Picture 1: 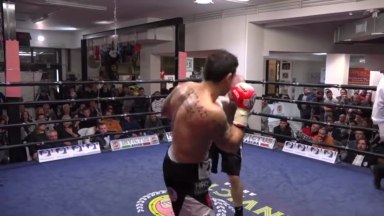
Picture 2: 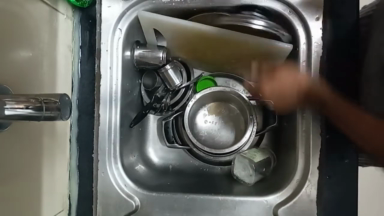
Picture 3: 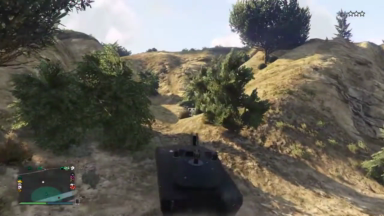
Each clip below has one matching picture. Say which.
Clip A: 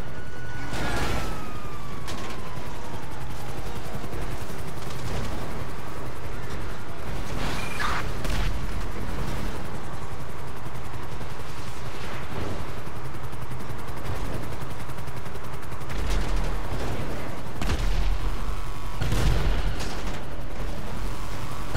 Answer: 3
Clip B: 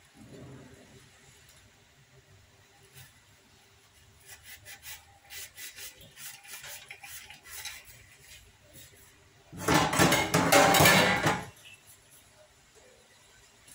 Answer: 2